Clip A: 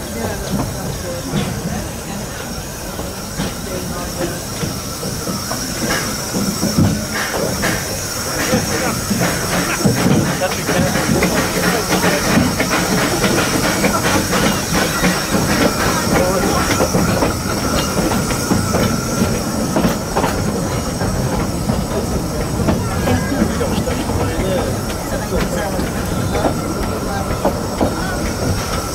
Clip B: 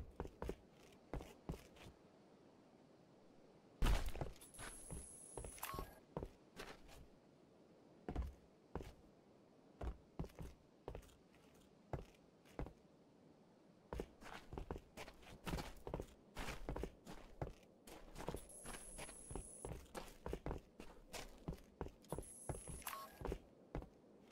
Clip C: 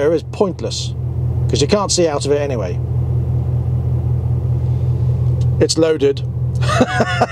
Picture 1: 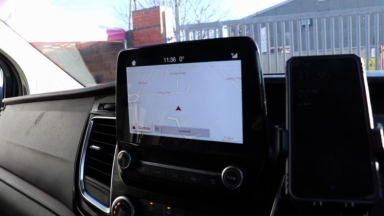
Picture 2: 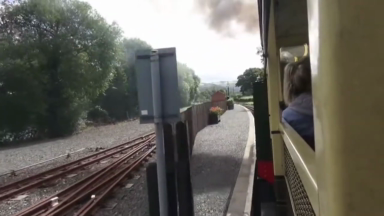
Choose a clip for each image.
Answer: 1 C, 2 A